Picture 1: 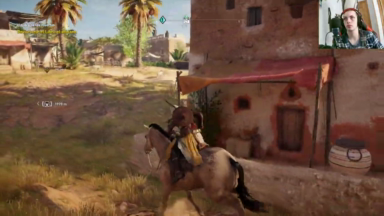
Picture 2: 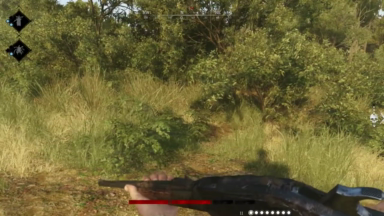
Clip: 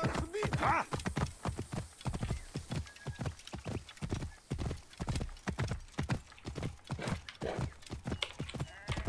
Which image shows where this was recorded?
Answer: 1